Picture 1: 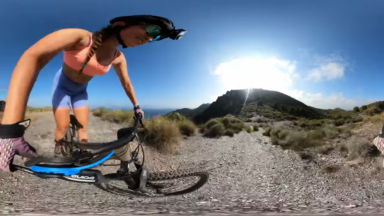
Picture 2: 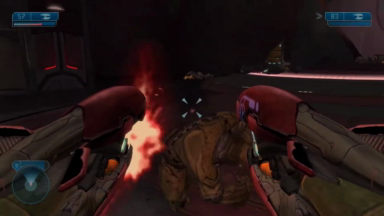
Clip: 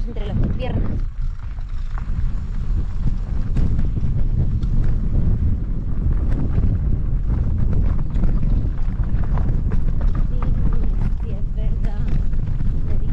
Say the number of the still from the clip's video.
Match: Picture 1